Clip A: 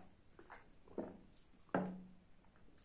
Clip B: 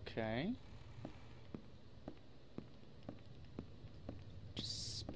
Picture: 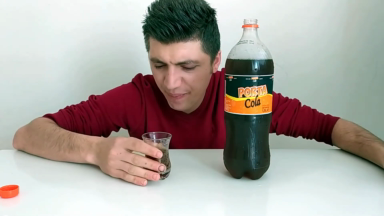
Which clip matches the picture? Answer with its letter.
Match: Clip A